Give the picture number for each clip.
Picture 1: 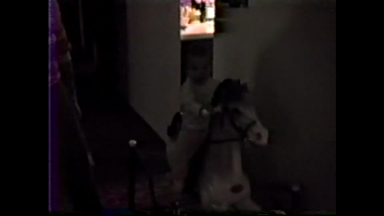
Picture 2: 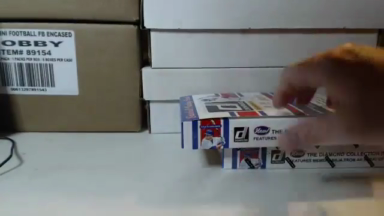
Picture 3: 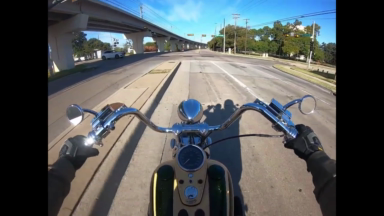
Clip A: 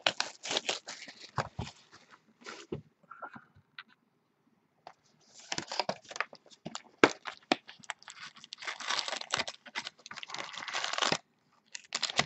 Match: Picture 2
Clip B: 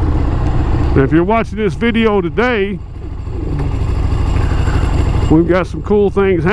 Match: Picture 3